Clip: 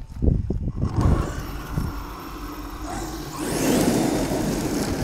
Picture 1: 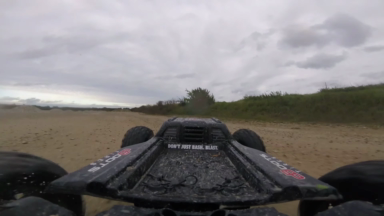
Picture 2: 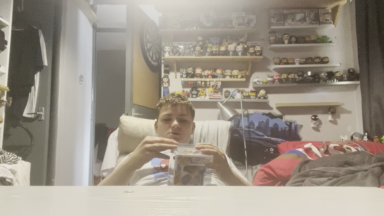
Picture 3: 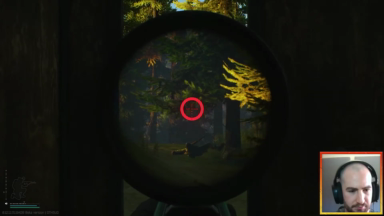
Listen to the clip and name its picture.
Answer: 1